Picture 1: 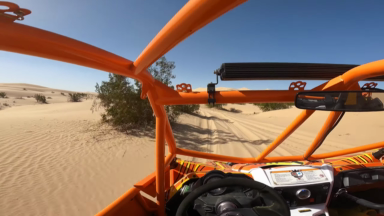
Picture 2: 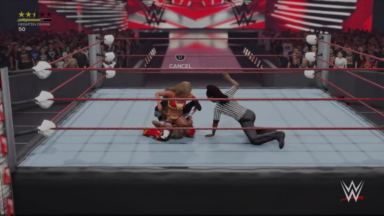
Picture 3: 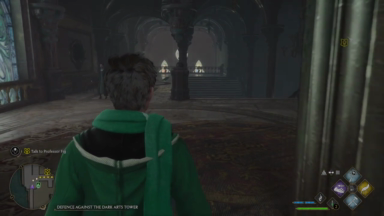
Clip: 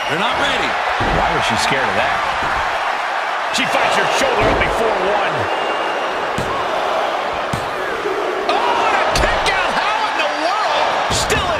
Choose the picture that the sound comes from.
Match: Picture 2